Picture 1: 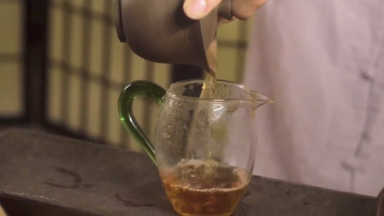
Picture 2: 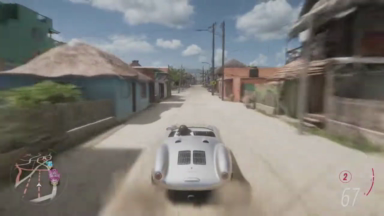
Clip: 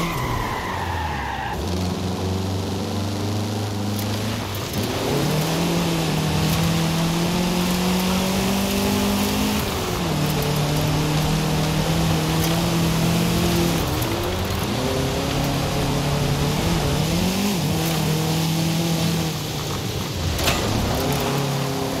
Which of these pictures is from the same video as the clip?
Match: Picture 2